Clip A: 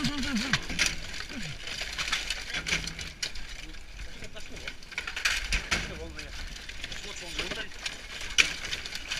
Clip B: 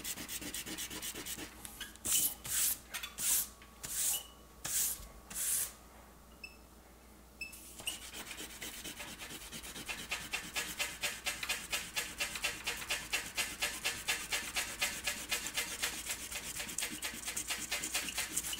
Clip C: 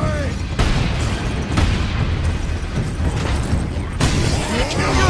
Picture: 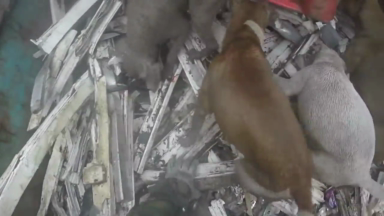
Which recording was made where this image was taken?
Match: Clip A